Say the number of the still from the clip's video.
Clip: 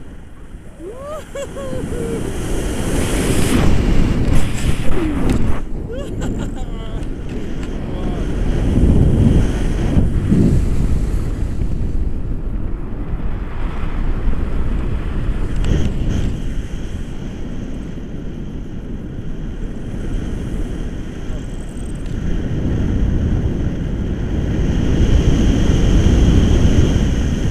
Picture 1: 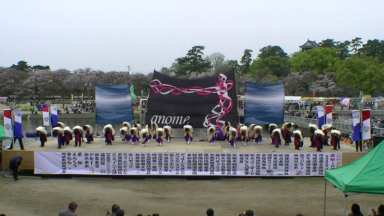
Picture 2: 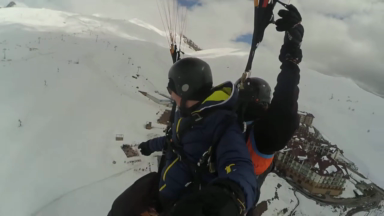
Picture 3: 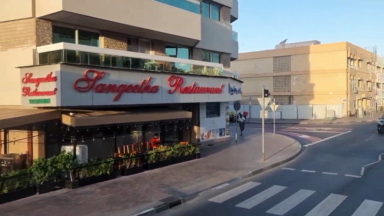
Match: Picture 2